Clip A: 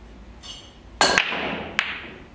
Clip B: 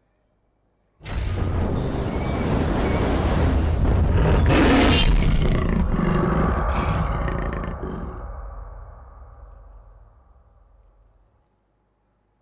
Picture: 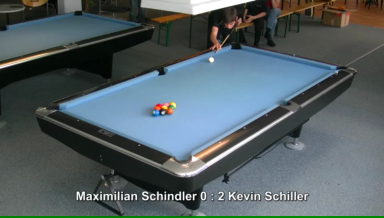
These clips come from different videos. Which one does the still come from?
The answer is A